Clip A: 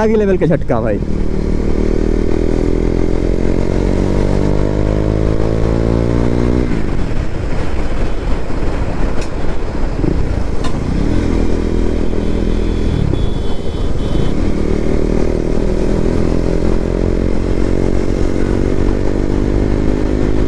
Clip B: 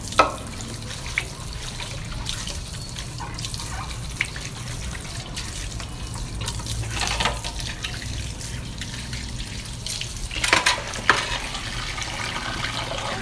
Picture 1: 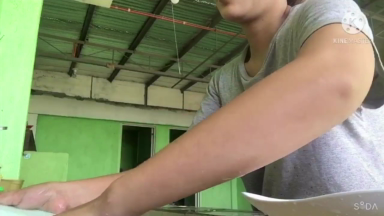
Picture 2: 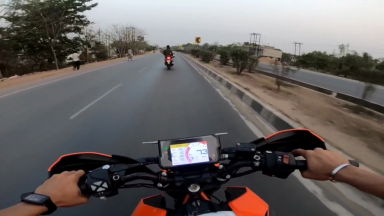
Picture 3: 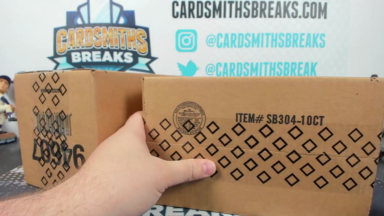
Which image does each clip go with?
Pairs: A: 2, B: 1